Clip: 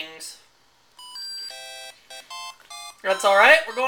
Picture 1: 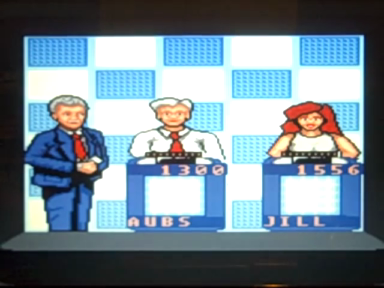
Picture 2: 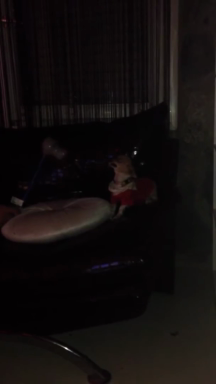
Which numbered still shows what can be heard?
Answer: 1